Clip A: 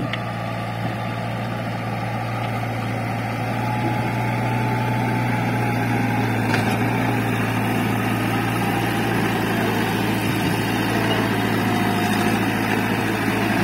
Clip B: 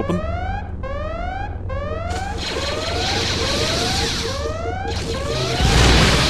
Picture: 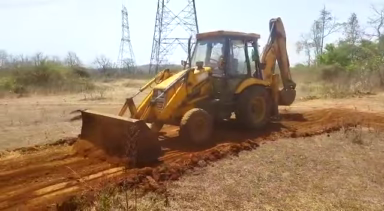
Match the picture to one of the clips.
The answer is A